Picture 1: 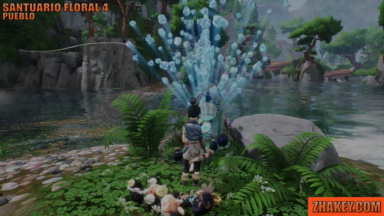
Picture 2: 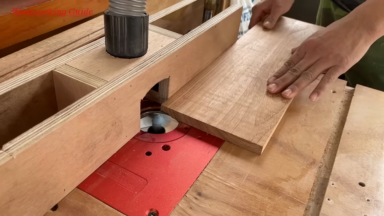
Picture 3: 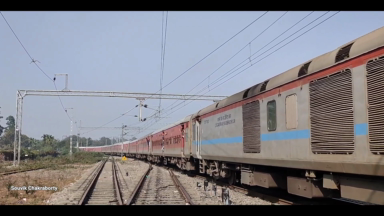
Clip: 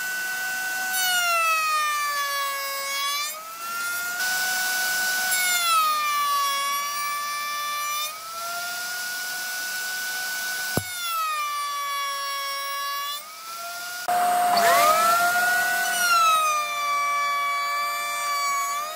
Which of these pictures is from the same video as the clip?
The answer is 2